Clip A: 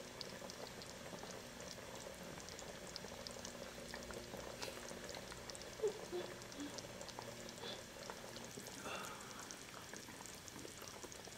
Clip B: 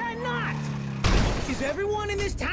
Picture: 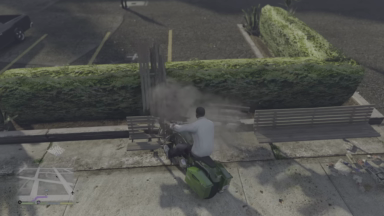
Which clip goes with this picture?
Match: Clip B